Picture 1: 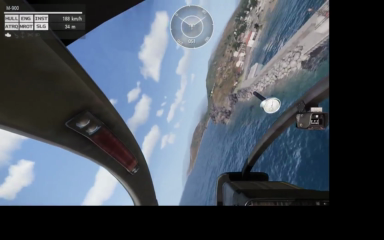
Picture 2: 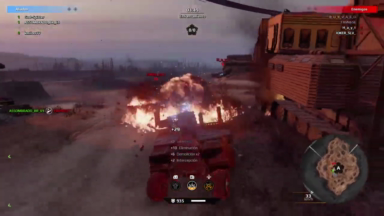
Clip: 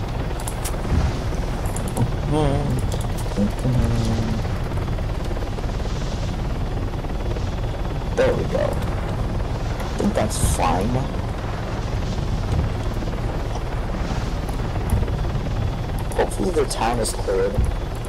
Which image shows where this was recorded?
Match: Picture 1